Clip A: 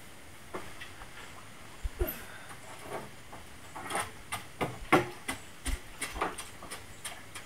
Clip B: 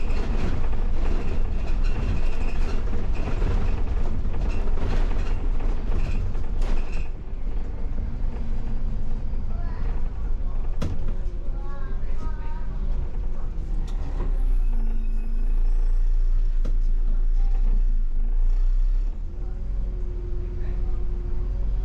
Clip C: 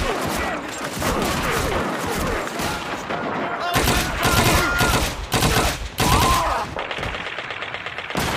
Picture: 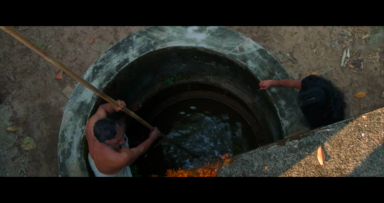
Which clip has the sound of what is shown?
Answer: A